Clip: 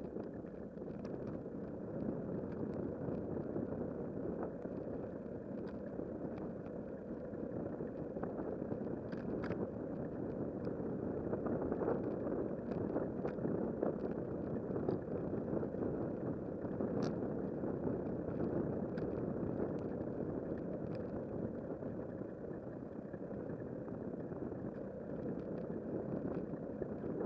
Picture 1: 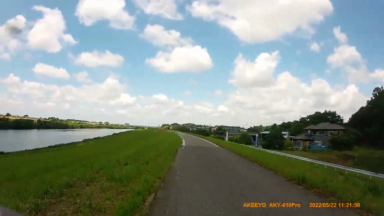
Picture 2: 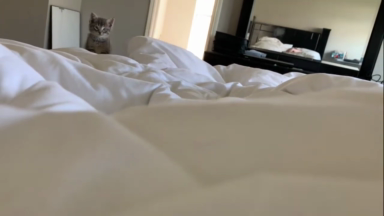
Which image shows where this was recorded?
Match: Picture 1